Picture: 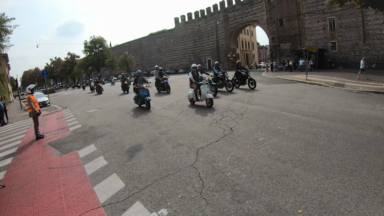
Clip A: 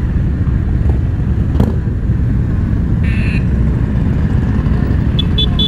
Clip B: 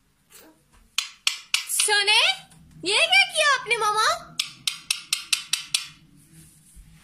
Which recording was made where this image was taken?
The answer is A